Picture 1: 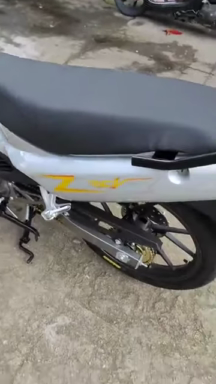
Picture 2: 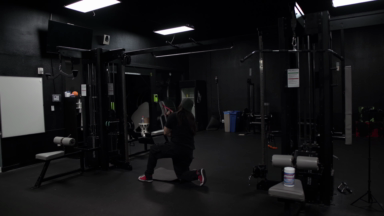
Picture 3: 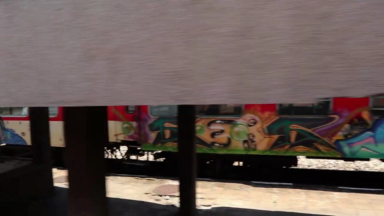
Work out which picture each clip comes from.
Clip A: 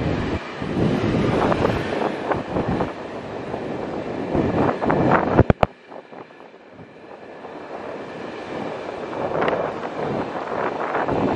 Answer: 3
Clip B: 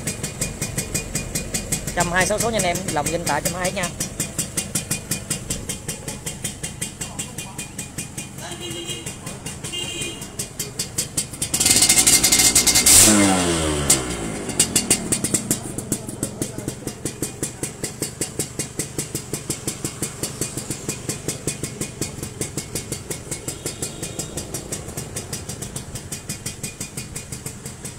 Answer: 1